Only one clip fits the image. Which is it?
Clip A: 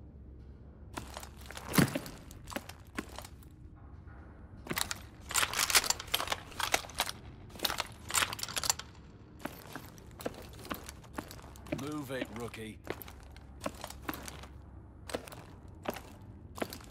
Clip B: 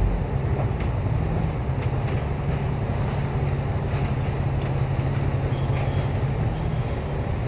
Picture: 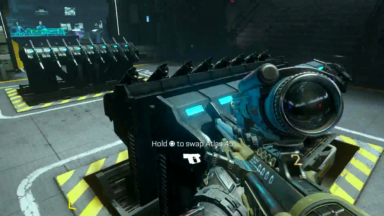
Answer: A